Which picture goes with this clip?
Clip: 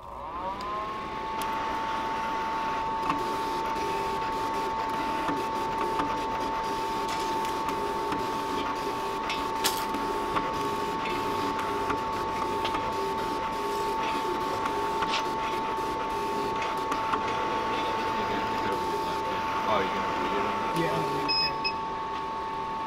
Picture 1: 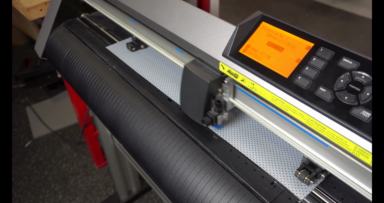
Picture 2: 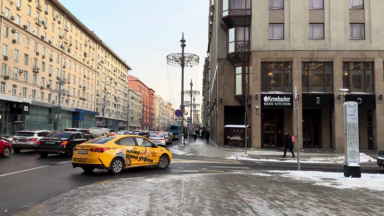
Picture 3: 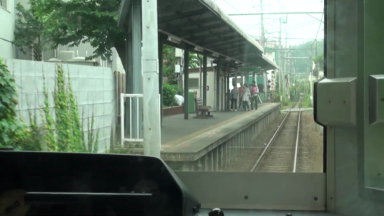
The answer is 1